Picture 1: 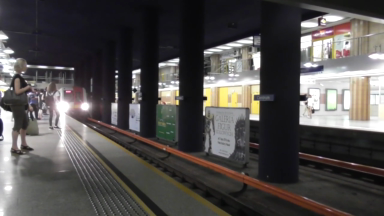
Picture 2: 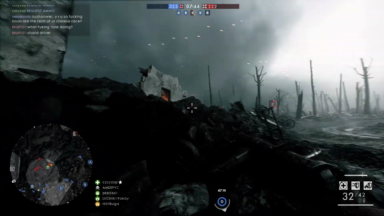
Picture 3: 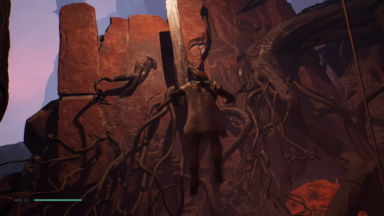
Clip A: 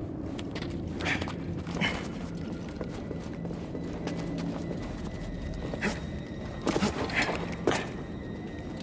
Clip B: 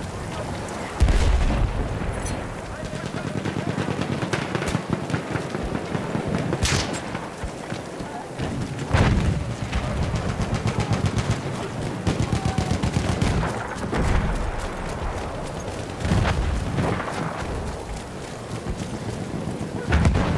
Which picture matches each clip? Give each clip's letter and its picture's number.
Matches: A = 3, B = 2